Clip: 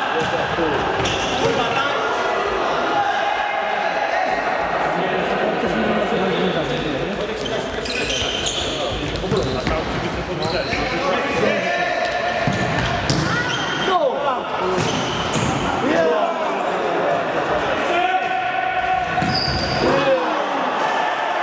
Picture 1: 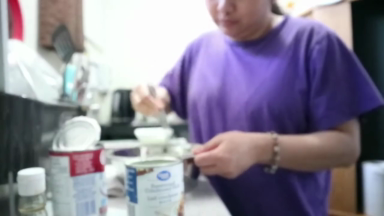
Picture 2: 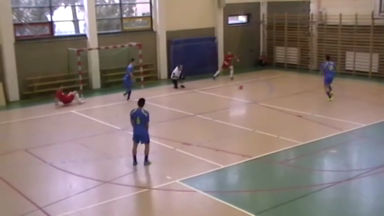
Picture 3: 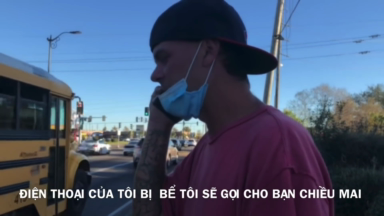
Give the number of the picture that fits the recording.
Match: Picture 2